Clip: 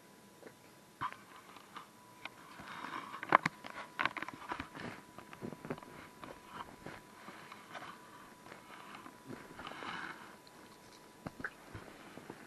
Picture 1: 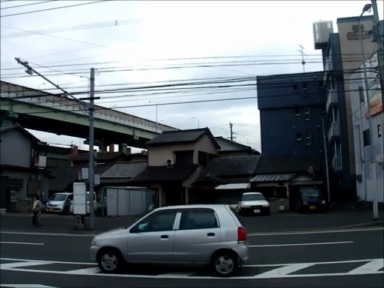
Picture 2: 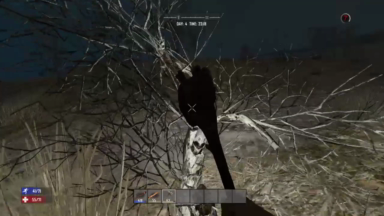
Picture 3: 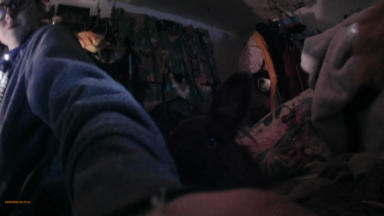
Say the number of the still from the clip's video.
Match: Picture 3